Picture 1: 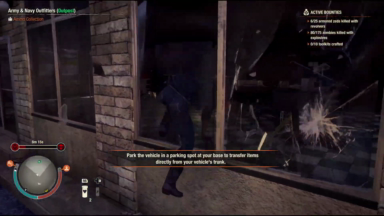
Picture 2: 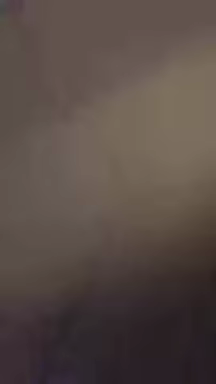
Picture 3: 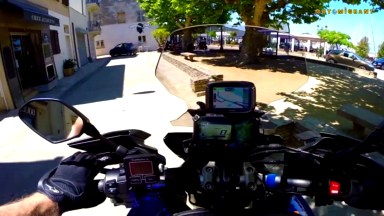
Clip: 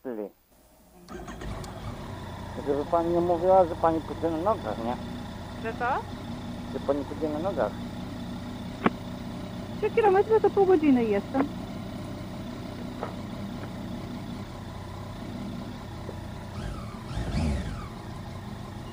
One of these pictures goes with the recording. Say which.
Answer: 3